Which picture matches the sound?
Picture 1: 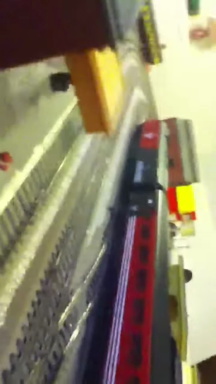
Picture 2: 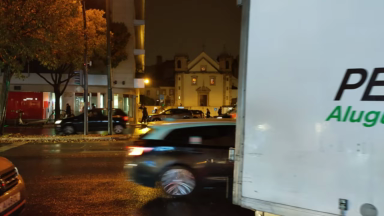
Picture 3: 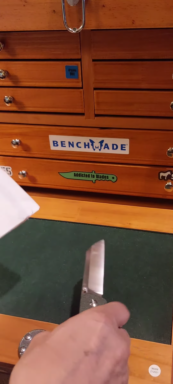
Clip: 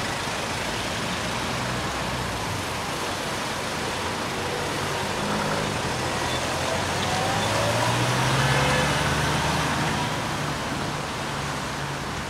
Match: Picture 2